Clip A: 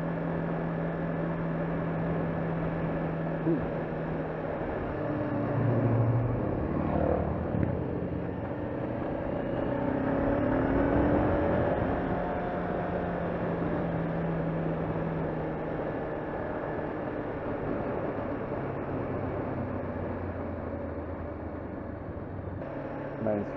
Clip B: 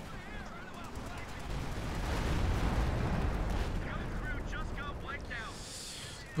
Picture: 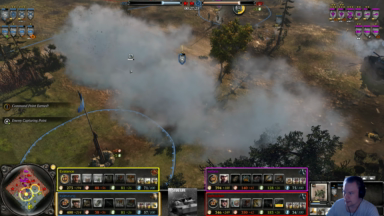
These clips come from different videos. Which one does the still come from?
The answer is B